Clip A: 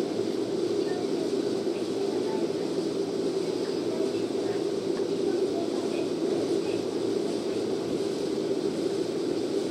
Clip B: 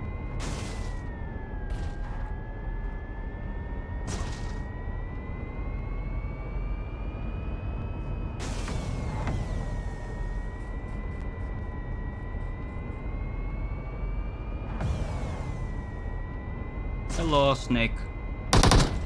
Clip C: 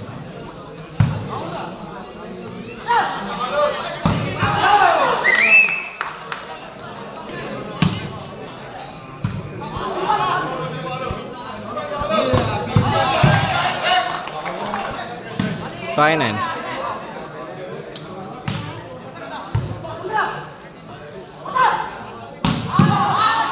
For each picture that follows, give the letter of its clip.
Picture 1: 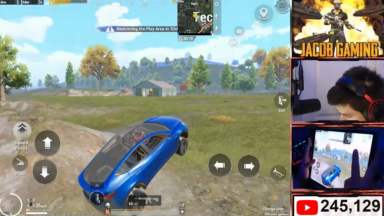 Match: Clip B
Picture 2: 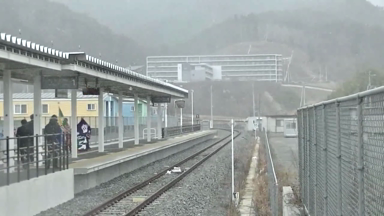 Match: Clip A